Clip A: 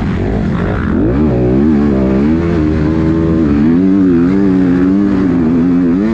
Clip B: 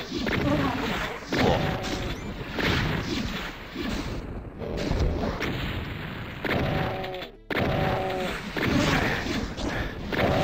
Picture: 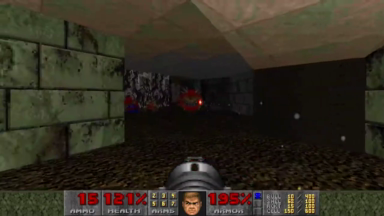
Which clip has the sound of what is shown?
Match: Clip B